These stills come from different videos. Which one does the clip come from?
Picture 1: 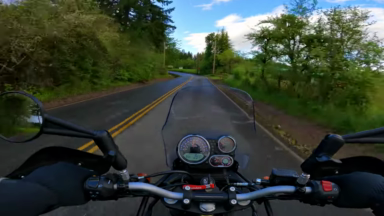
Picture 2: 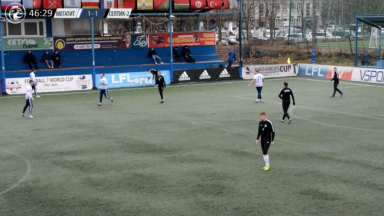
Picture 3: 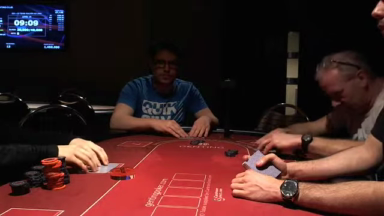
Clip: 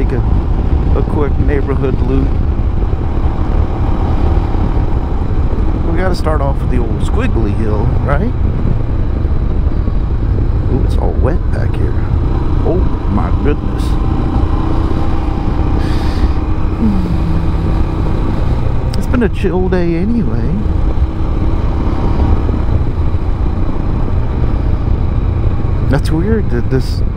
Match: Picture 1